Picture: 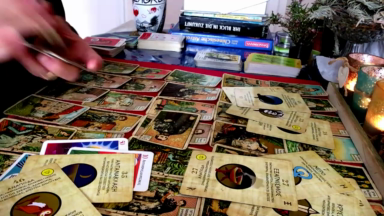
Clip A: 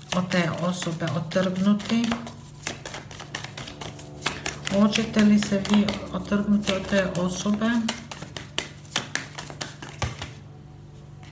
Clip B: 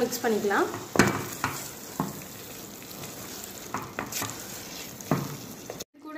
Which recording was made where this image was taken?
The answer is A